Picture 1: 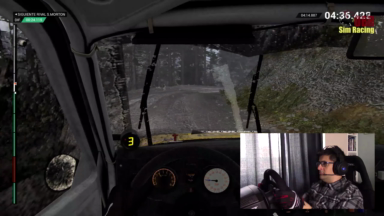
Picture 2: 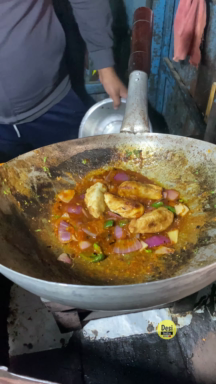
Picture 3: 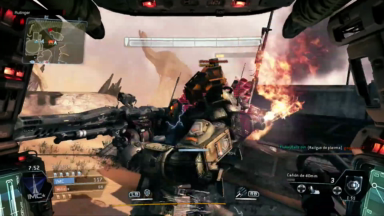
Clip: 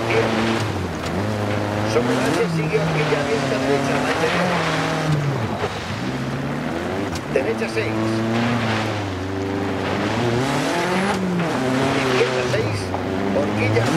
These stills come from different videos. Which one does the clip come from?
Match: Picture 1